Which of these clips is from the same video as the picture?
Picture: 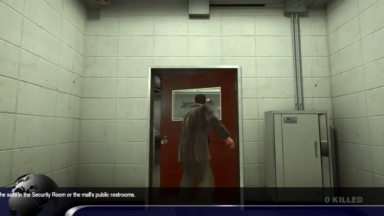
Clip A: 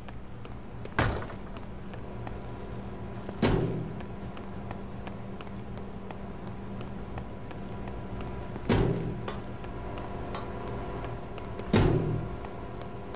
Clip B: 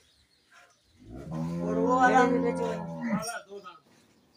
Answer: A